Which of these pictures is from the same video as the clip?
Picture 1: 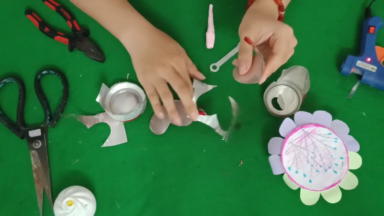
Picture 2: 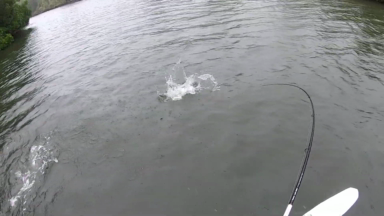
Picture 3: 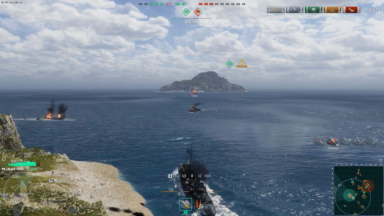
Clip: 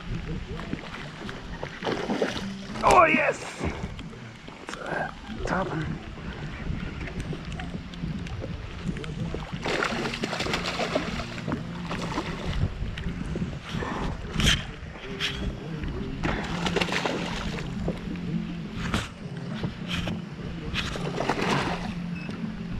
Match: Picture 2